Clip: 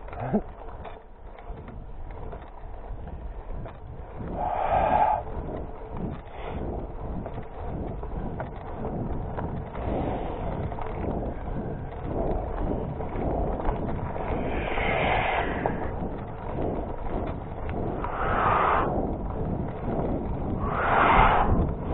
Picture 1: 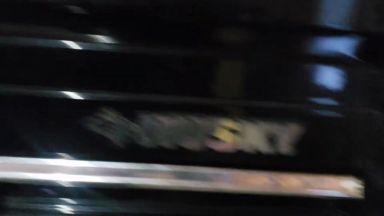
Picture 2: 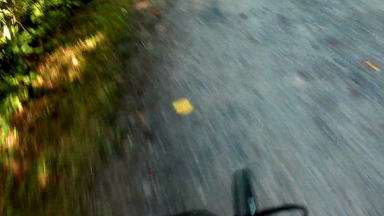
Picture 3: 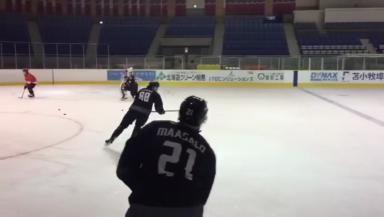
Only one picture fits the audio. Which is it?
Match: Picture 2